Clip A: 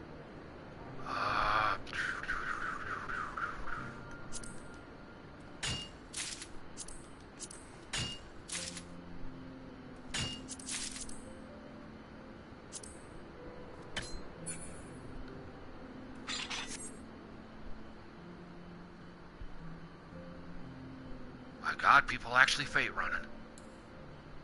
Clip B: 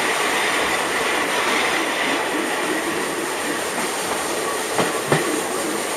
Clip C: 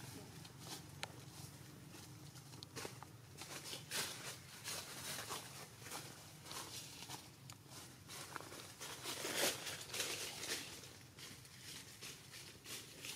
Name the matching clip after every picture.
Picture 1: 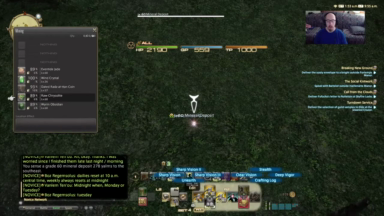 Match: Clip A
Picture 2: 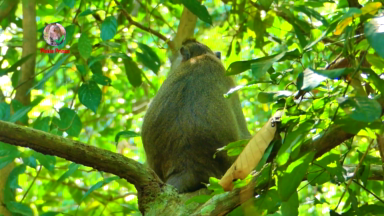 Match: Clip C